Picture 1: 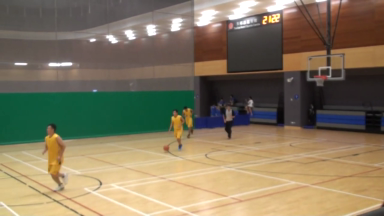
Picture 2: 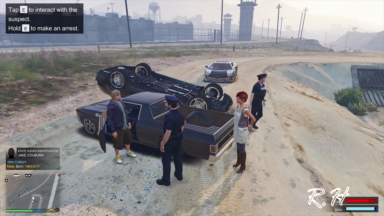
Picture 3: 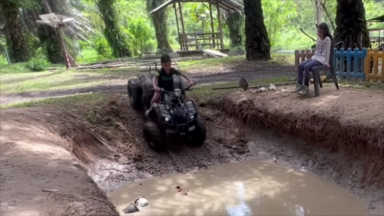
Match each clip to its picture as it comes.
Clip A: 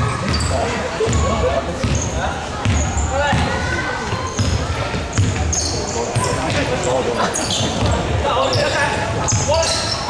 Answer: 1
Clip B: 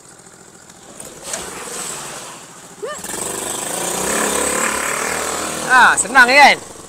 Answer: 3